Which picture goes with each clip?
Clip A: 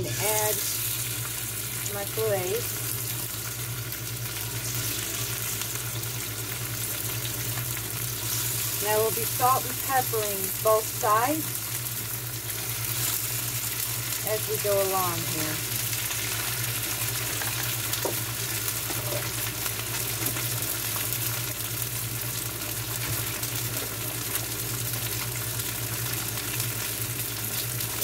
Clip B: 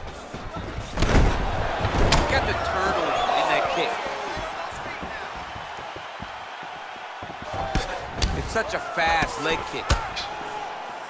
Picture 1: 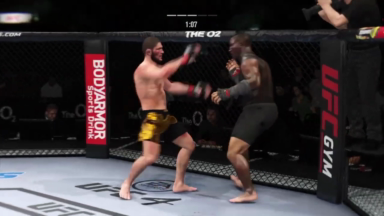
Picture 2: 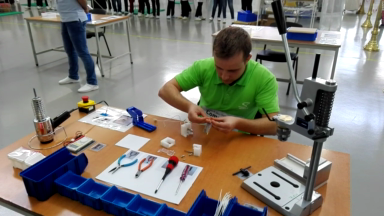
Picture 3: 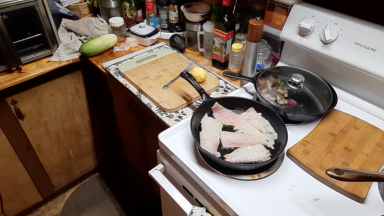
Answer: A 3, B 1